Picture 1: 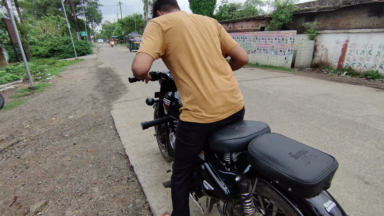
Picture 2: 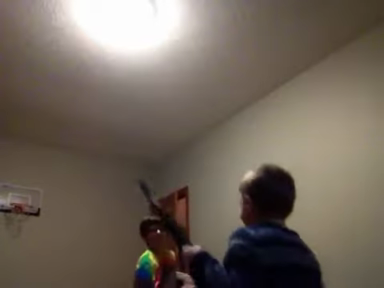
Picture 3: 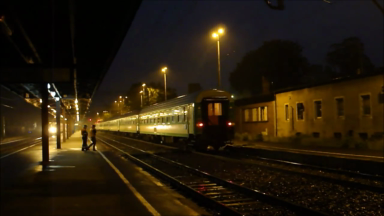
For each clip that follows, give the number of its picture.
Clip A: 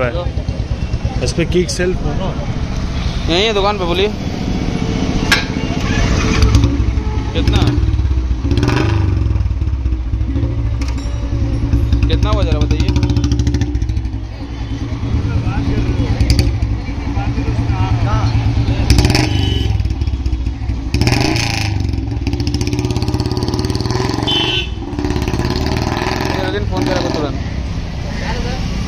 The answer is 1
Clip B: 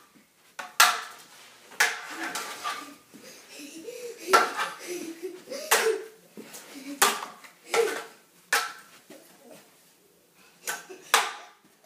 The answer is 2